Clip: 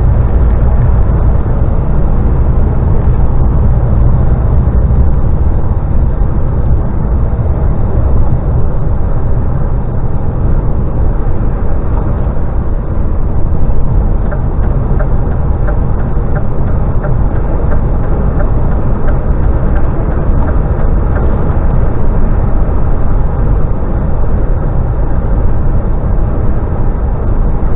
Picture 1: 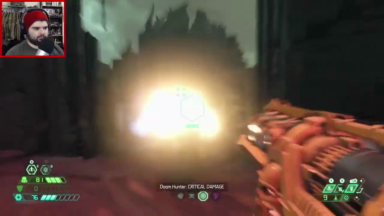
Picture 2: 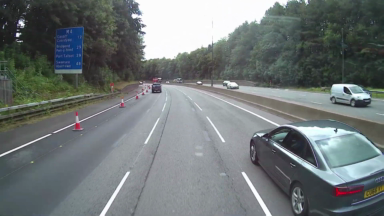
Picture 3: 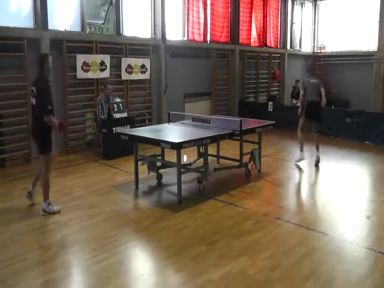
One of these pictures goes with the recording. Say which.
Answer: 2